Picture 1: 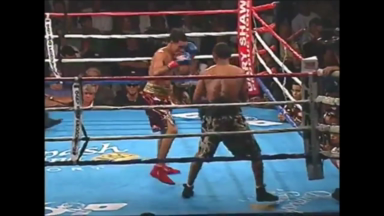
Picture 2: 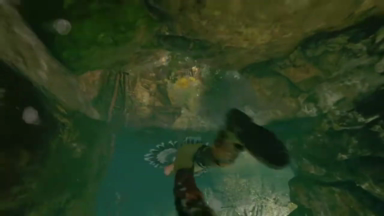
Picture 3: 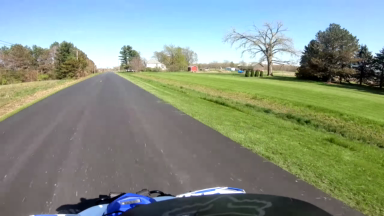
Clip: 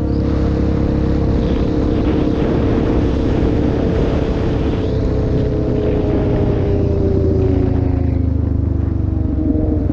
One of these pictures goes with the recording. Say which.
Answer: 3